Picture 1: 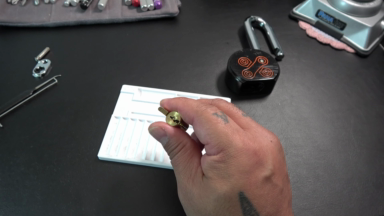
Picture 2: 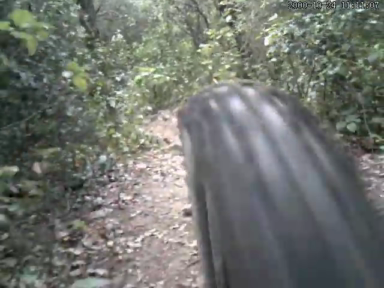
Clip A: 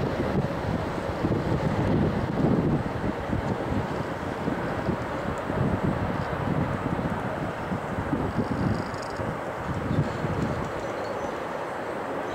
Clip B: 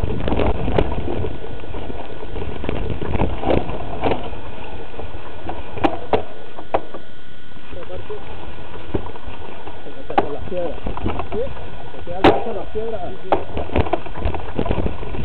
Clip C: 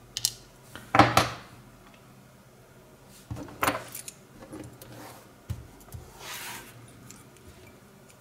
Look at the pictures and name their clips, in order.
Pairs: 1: C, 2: B